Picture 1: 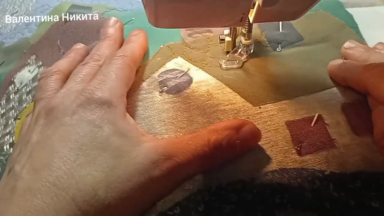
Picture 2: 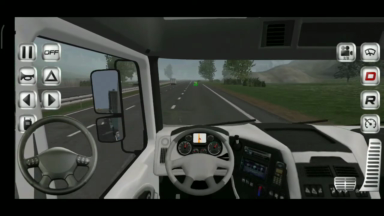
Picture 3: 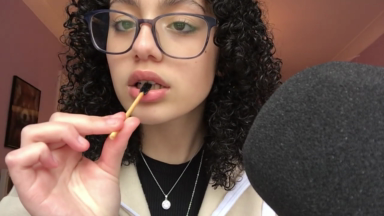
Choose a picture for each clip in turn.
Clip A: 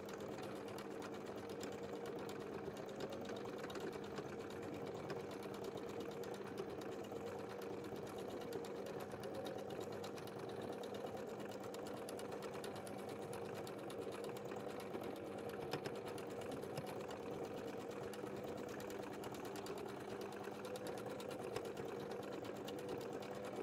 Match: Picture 1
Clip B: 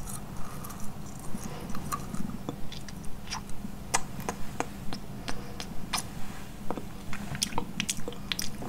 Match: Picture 3